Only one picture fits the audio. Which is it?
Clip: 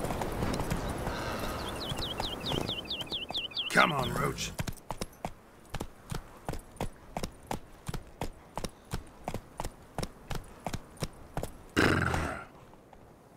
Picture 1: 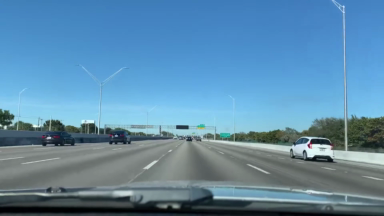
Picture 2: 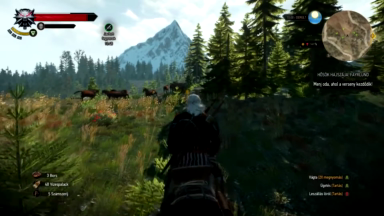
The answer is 2